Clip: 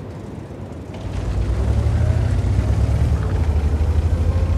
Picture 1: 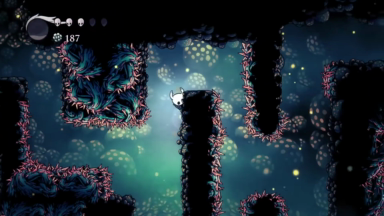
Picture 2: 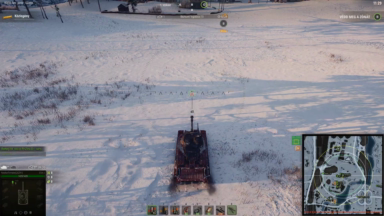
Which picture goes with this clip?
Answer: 2